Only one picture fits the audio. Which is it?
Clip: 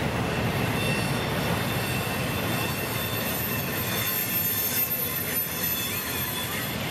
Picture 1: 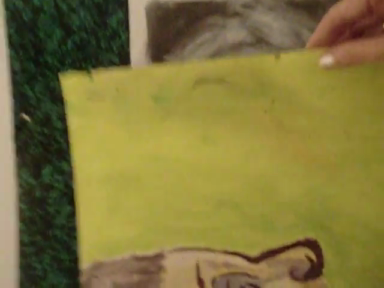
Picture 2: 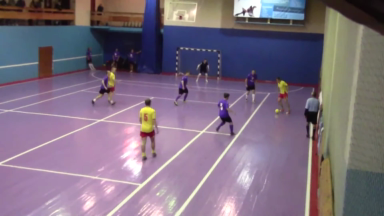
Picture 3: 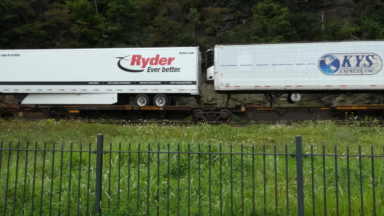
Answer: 3